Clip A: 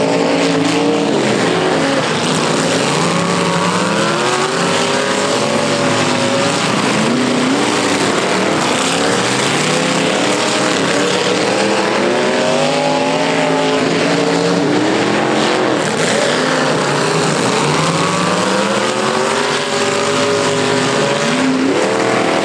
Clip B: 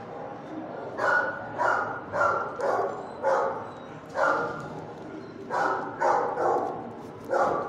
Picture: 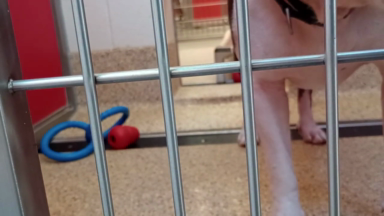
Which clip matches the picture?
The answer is B